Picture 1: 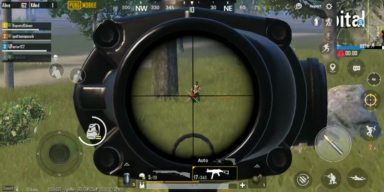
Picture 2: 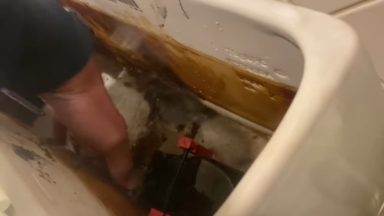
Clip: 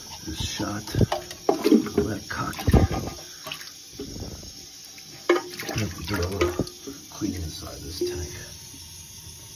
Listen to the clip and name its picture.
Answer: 2